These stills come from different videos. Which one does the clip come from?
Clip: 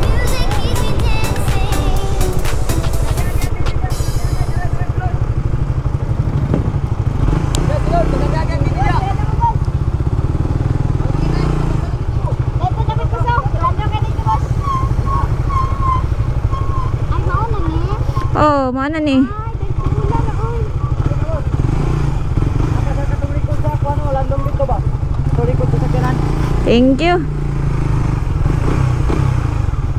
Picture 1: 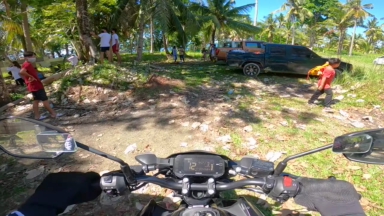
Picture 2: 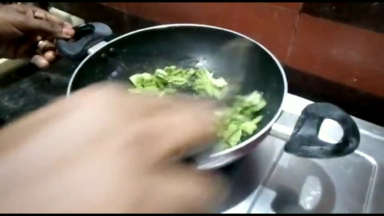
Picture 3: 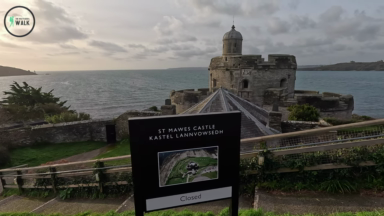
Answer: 1